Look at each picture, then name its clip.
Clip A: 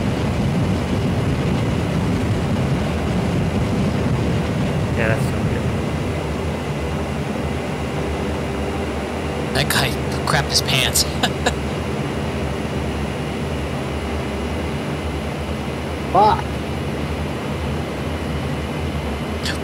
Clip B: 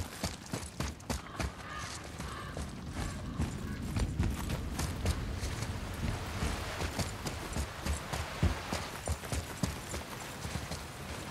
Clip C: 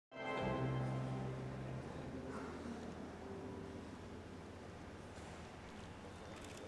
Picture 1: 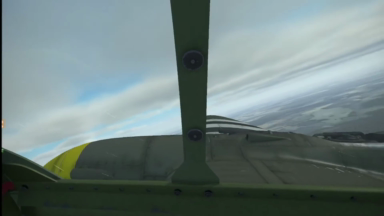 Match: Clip A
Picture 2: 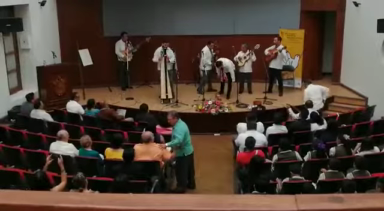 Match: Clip C